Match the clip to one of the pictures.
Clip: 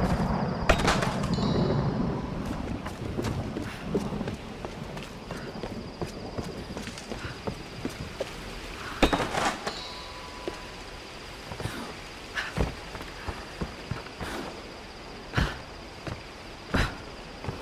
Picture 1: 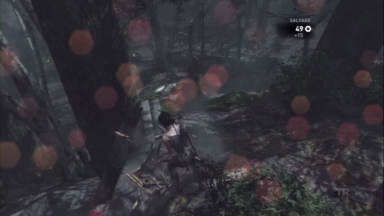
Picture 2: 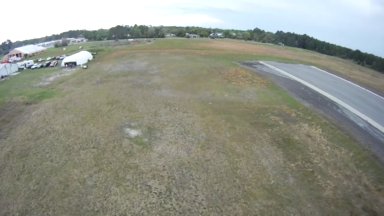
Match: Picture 1